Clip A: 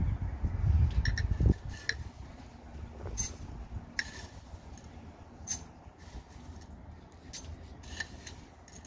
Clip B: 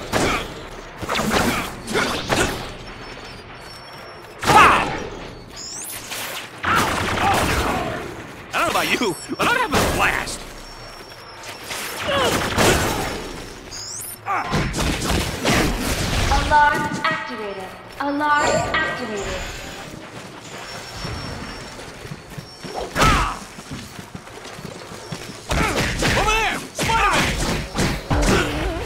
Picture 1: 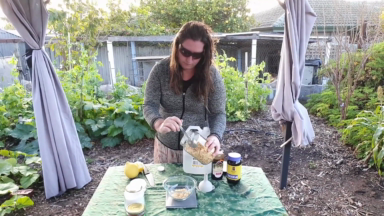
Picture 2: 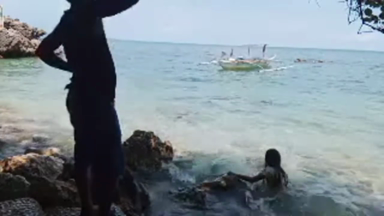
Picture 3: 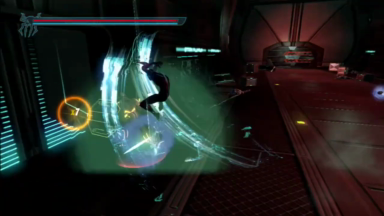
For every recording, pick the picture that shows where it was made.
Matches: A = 1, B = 3